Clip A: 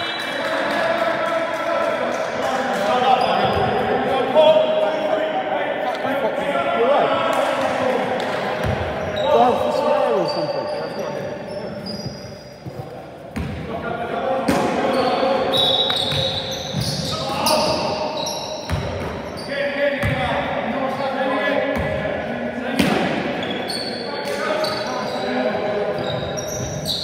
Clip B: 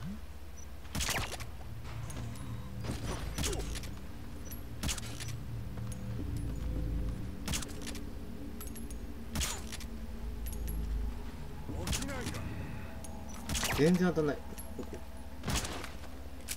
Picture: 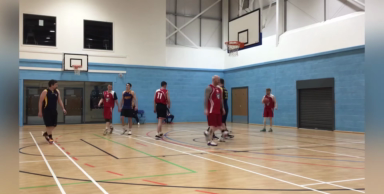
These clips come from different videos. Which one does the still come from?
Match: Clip A